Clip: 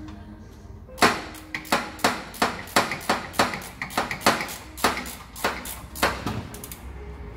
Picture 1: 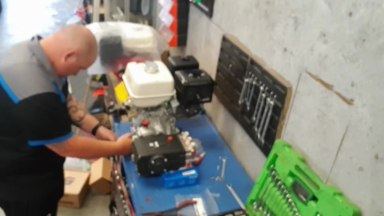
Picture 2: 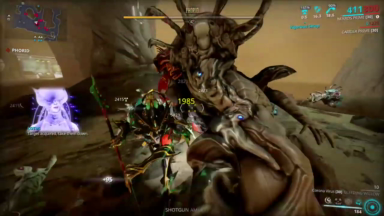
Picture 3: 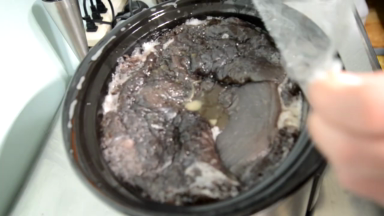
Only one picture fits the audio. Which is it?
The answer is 1